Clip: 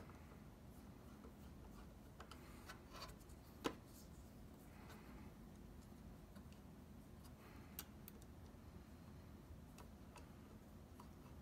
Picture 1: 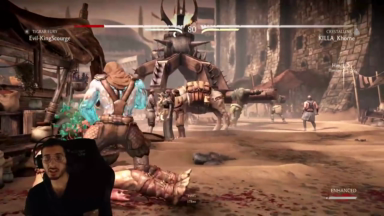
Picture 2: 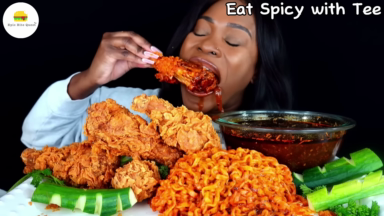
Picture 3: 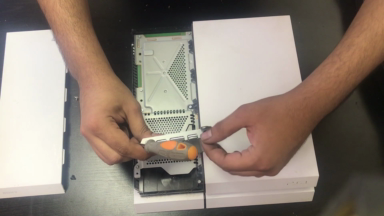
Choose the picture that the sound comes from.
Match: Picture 3